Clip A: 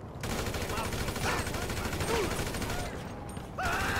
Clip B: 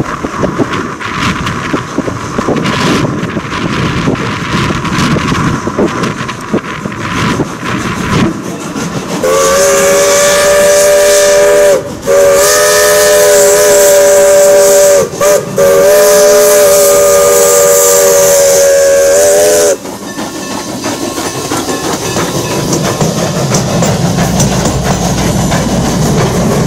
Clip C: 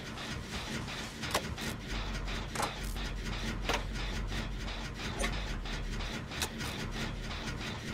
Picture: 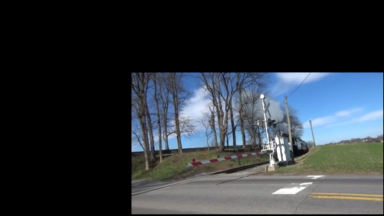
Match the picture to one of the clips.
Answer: B